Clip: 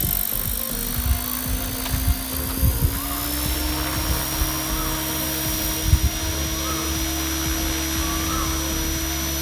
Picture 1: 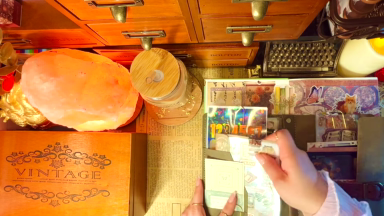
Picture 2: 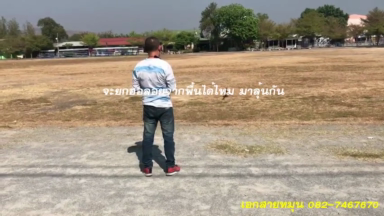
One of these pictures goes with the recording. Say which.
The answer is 2